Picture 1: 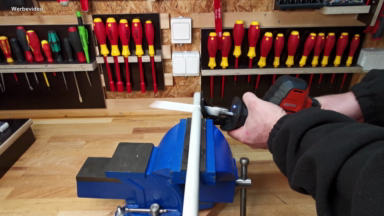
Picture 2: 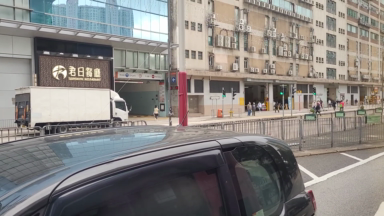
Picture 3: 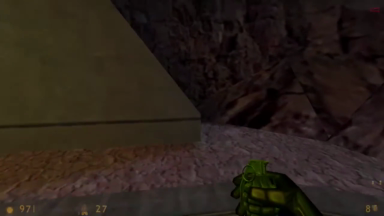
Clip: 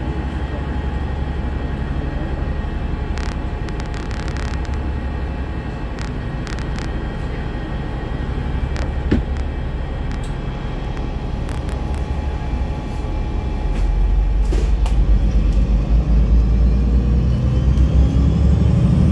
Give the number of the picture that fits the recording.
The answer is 2